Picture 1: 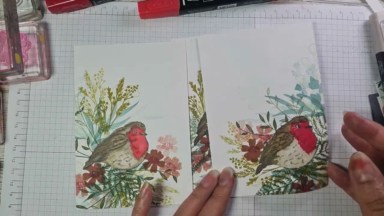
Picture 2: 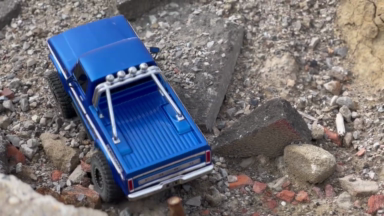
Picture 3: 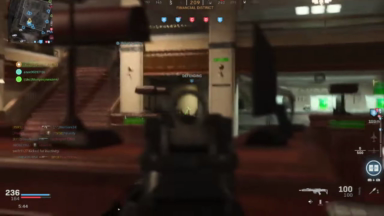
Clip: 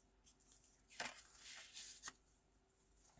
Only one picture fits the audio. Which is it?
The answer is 1